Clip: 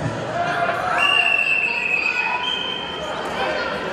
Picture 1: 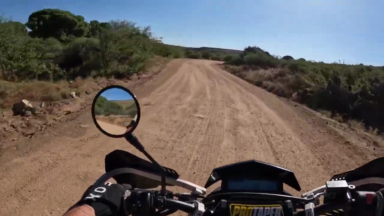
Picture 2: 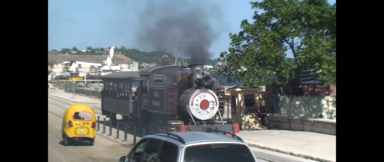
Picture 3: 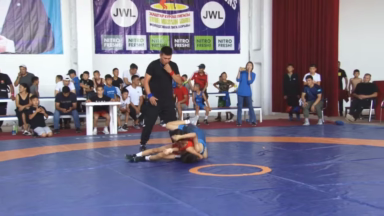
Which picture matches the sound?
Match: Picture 3